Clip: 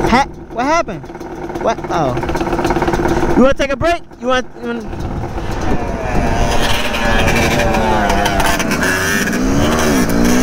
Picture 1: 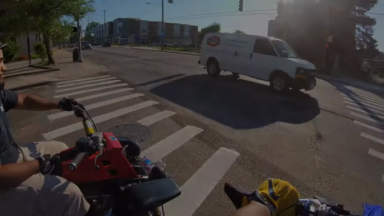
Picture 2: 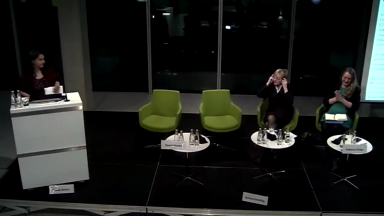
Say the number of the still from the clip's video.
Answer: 1